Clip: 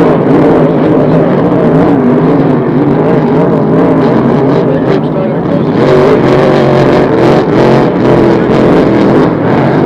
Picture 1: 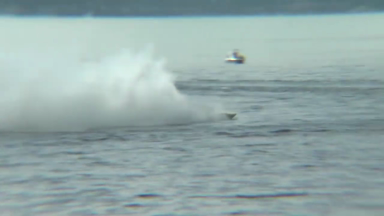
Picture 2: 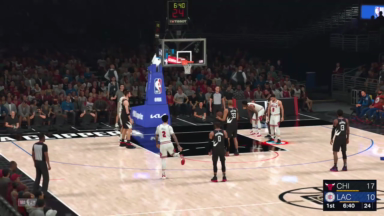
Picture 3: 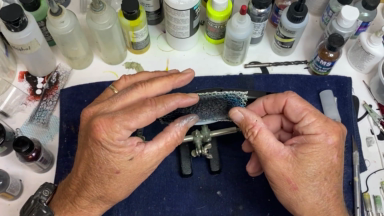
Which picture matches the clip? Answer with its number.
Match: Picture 1